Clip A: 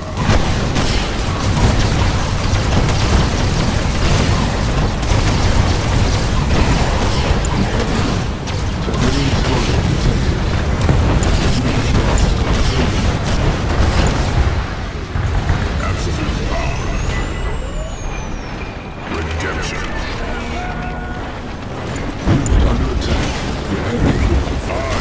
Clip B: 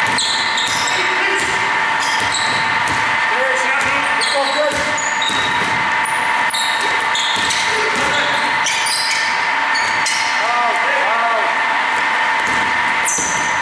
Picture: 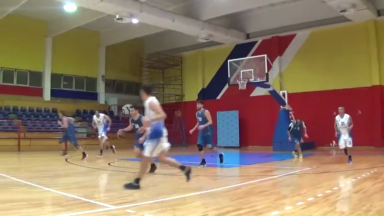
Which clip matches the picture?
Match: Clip B